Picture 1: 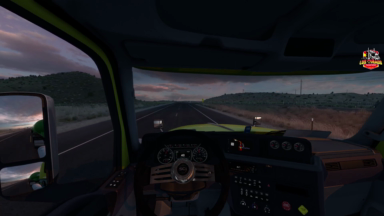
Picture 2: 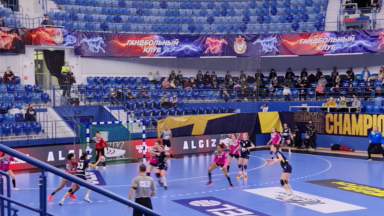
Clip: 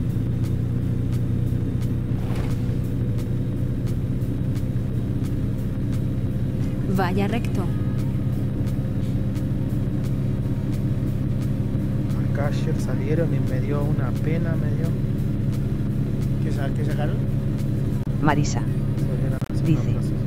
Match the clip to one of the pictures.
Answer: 1